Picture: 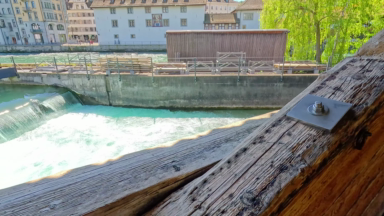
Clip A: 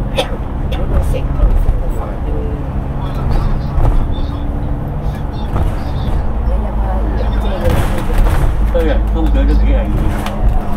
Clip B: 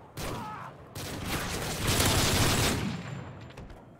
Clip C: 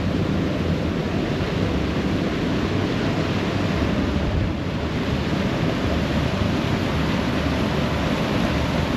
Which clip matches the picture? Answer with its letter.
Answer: C